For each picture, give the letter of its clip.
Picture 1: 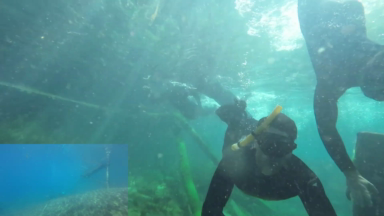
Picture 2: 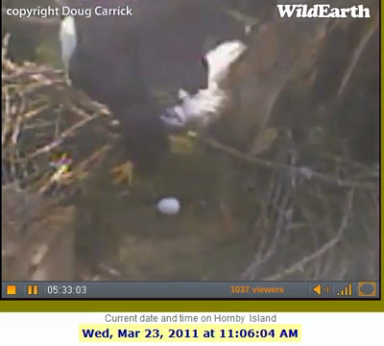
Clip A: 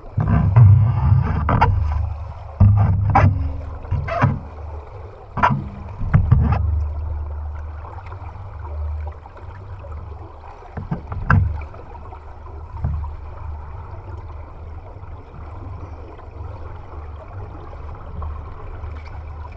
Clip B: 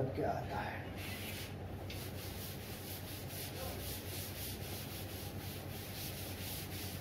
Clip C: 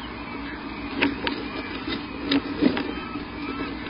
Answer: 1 A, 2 C